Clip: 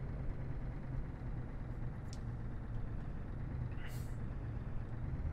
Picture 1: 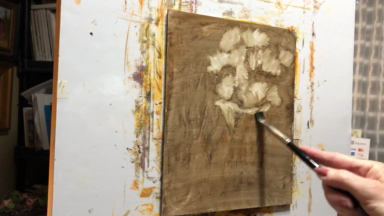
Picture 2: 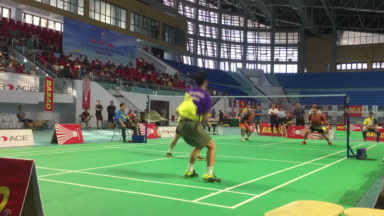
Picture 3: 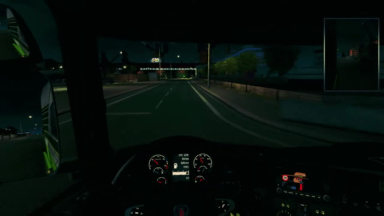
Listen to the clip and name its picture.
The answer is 3